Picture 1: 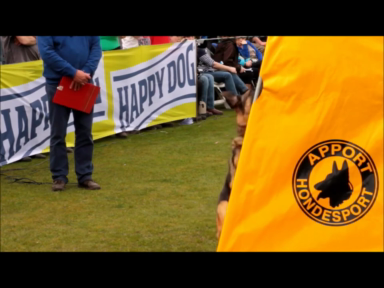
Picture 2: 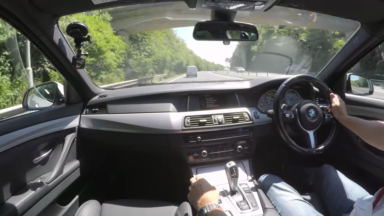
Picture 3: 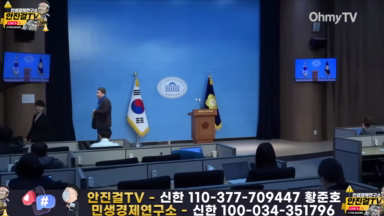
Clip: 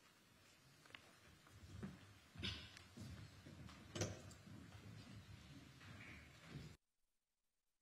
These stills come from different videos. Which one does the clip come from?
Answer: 3